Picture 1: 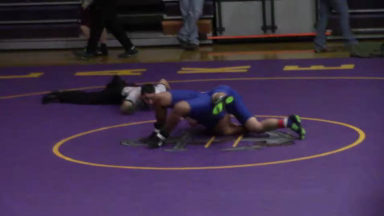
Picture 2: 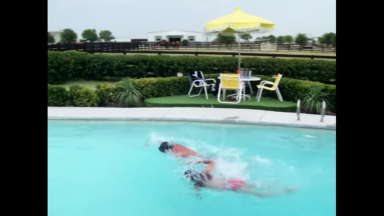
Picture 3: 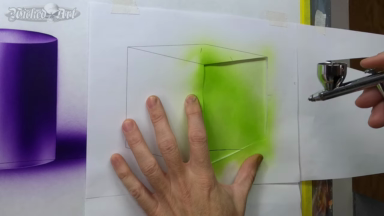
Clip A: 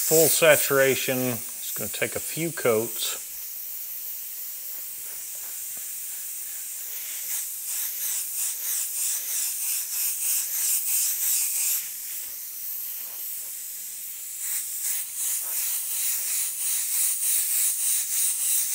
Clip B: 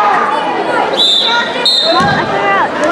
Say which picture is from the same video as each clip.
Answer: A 3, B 1